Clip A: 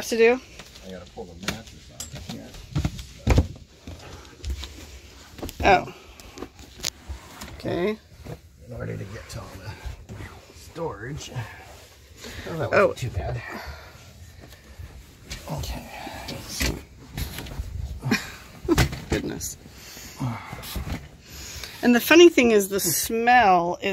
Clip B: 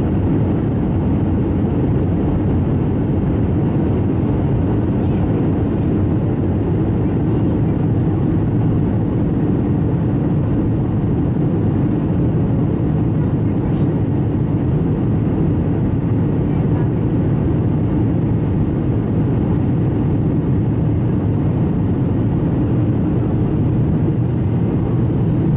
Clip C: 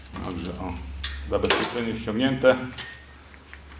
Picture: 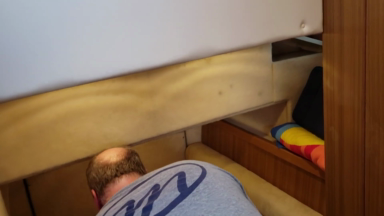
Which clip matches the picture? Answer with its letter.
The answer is A